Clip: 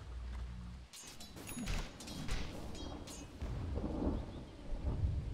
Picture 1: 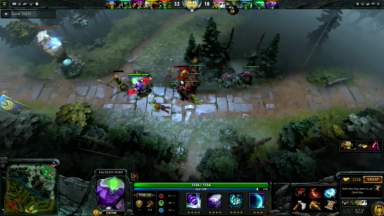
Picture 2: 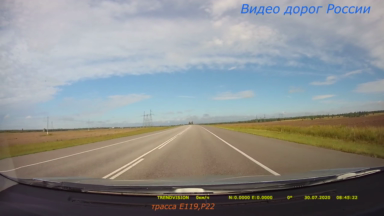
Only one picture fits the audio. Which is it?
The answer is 1